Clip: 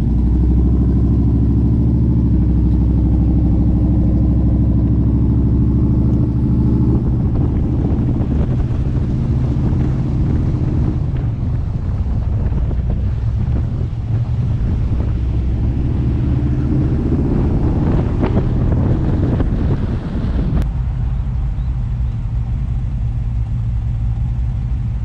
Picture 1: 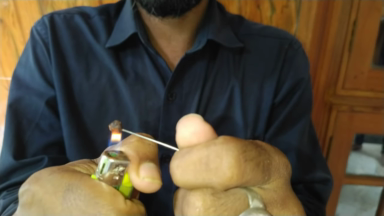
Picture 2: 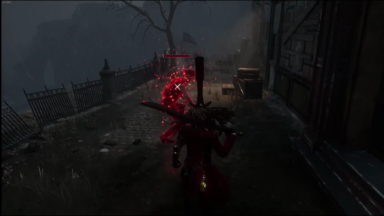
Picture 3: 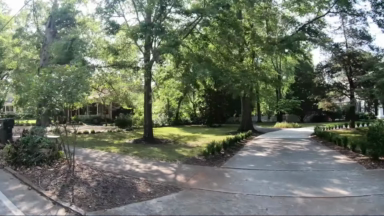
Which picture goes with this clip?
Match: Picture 3